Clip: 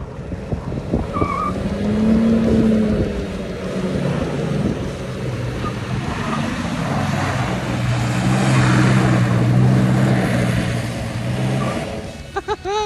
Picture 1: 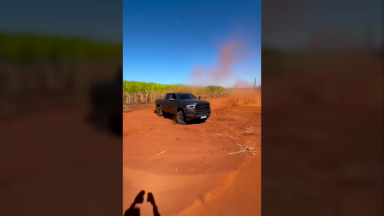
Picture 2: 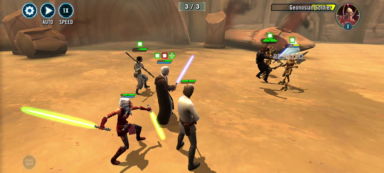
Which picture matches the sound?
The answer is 1